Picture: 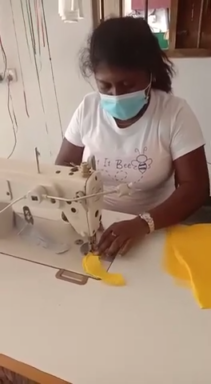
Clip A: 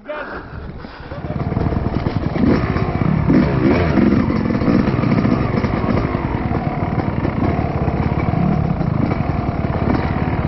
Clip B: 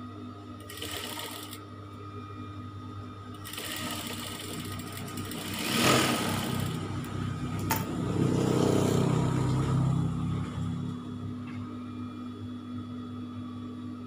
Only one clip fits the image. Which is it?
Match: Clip B